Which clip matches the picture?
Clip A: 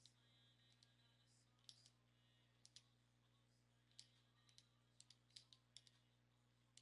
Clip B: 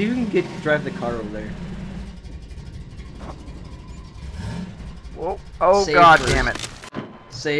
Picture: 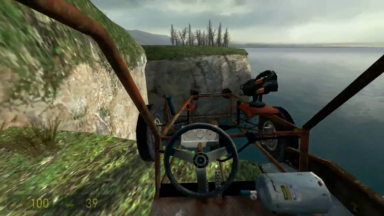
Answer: B